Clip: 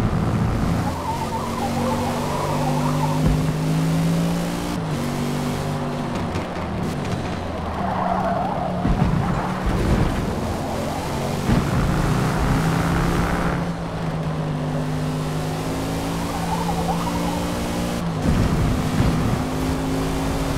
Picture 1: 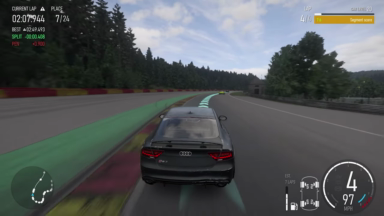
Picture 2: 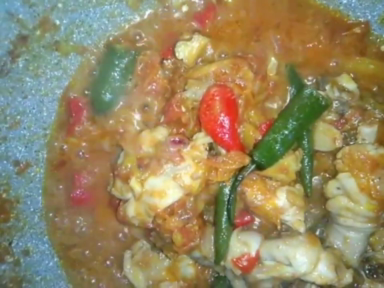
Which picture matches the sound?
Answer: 1